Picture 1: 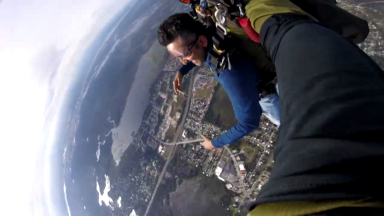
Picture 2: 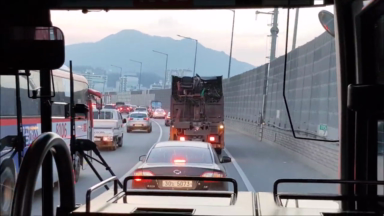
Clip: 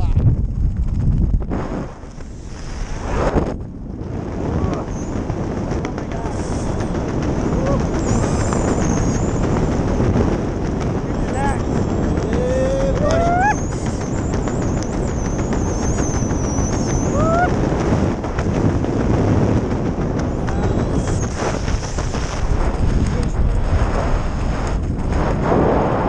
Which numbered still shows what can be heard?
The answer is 1